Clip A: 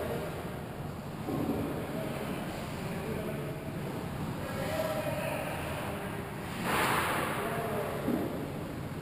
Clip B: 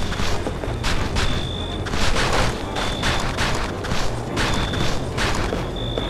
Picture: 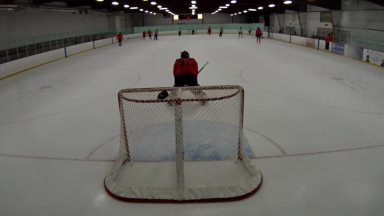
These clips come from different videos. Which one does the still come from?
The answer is A